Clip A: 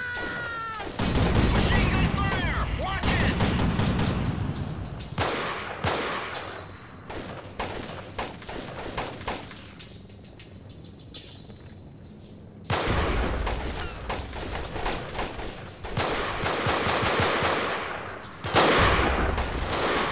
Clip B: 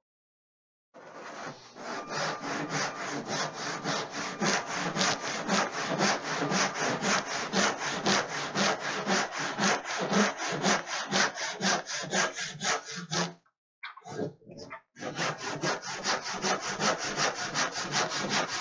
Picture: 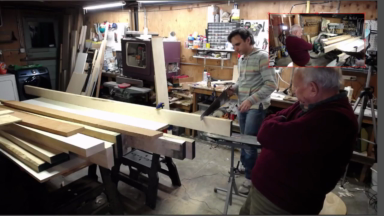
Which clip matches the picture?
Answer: B